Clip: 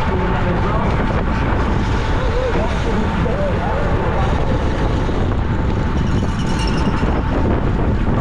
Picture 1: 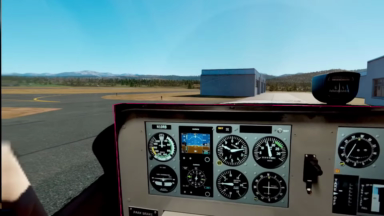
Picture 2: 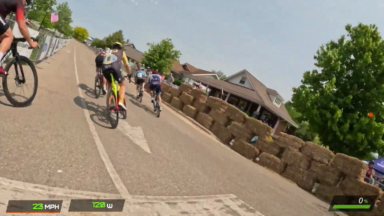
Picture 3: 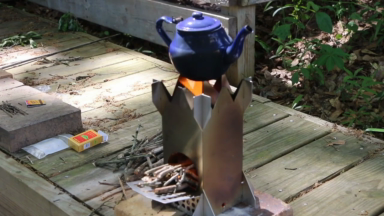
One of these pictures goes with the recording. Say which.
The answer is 2